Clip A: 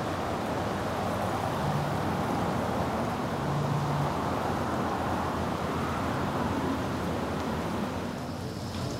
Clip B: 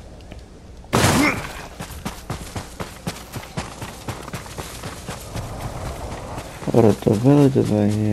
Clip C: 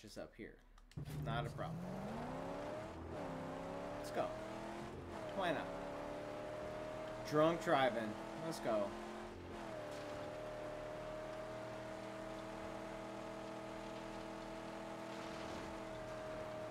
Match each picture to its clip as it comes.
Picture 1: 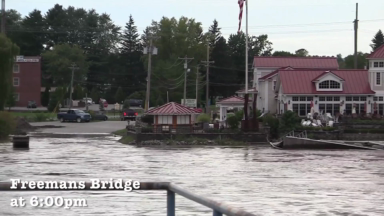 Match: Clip A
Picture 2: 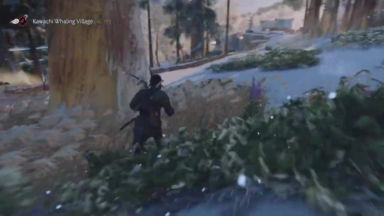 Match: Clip B